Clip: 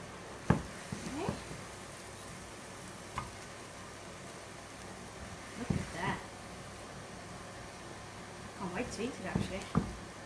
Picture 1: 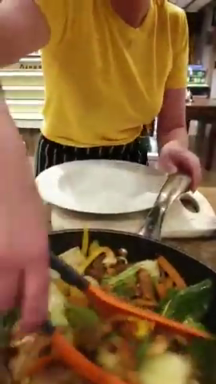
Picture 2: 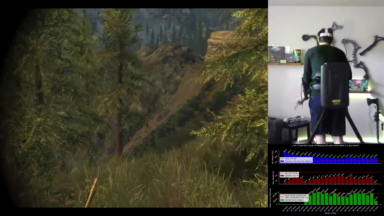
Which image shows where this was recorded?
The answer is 1